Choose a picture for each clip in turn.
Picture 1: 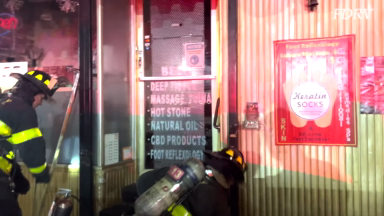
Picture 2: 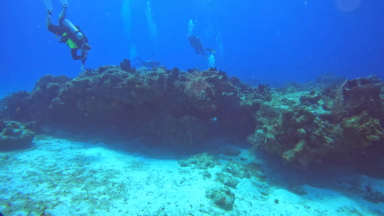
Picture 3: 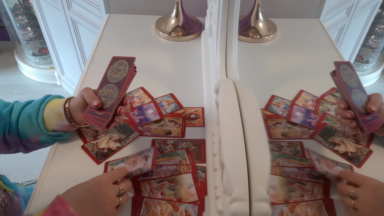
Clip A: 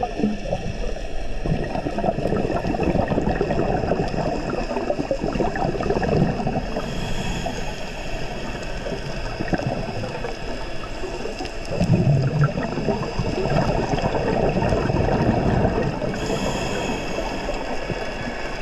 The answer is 2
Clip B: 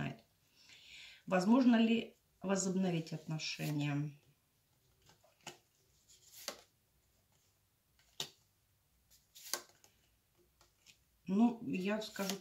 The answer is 3